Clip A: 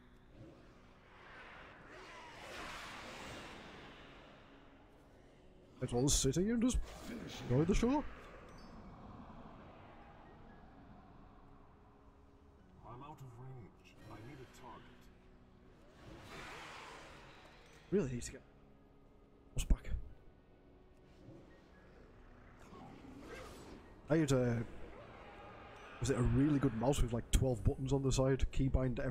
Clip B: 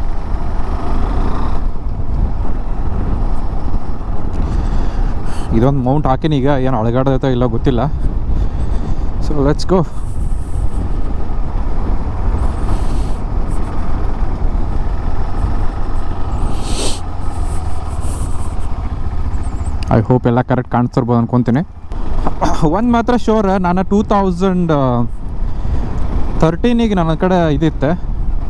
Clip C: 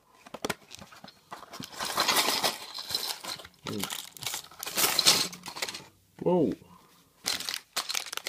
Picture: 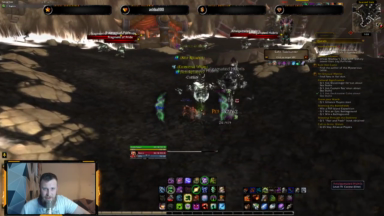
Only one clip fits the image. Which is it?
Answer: A